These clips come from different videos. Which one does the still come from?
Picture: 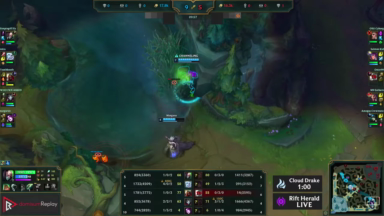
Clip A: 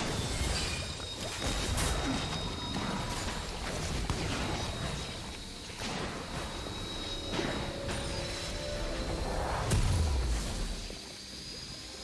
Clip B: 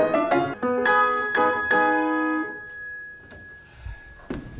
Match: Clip A